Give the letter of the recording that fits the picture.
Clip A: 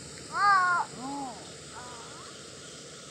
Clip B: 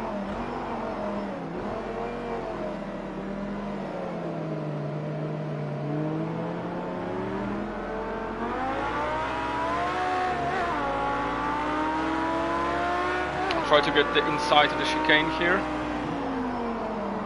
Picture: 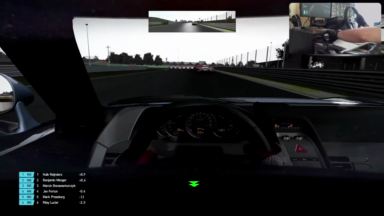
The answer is B